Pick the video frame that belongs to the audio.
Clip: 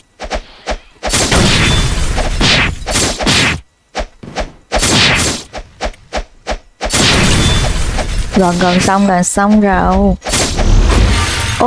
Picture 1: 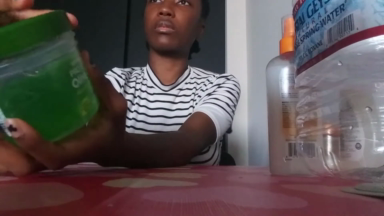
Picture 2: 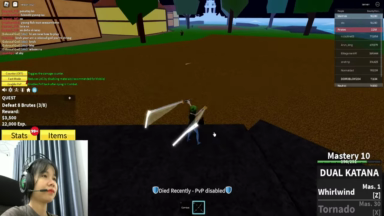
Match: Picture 2